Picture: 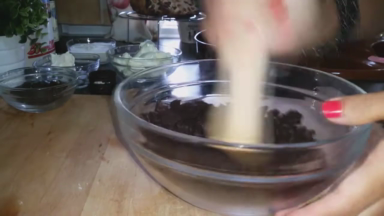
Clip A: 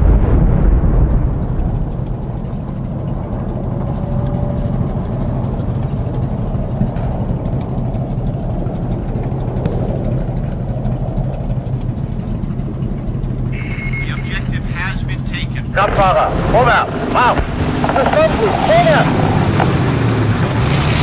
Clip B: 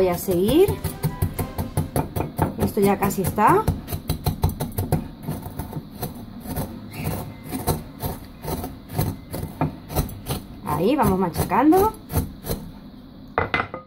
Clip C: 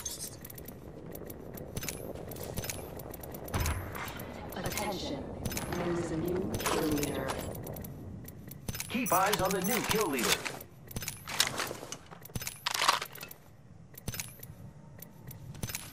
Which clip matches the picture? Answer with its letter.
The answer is B